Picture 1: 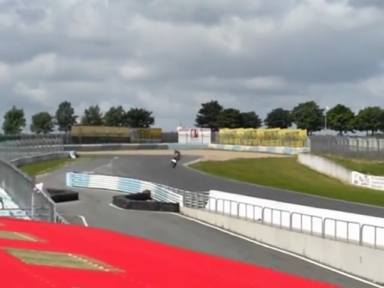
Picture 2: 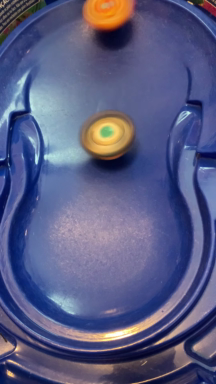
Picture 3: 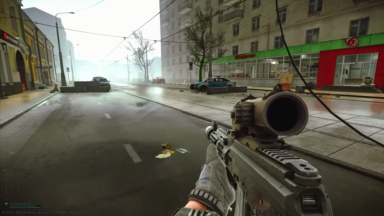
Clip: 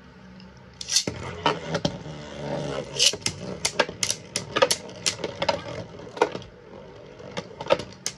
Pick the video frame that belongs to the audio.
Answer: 2